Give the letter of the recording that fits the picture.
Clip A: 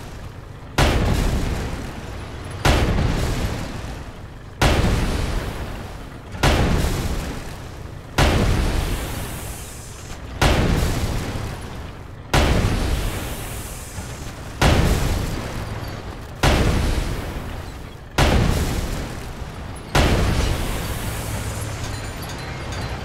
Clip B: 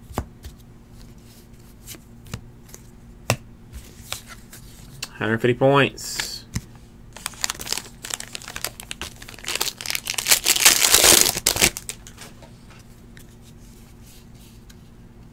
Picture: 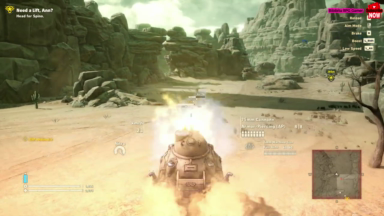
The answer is A